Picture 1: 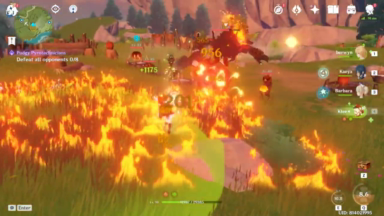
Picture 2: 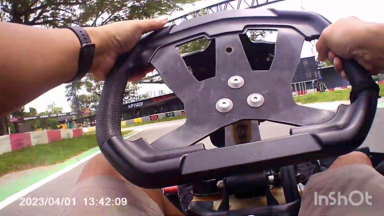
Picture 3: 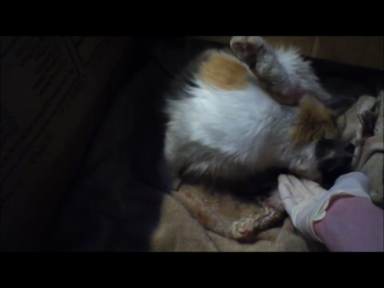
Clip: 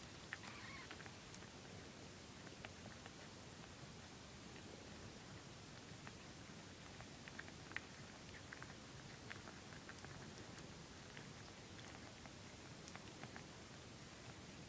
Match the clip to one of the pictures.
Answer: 3